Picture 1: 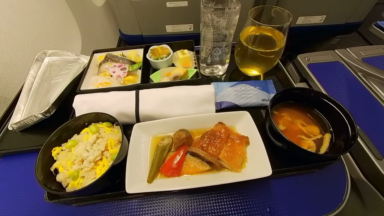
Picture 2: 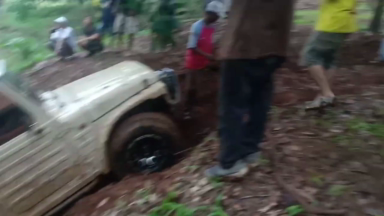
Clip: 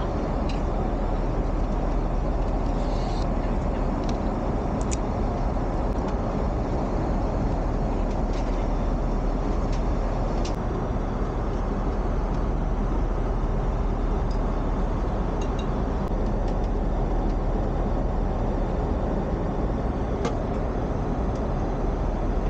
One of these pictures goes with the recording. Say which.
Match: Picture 1